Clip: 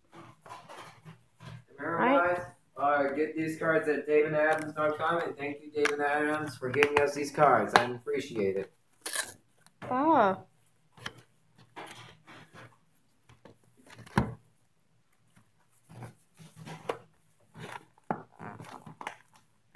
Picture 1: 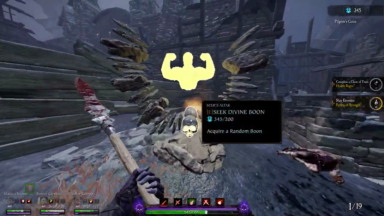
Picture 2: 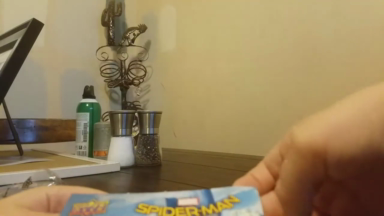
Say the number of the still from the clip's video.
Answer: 2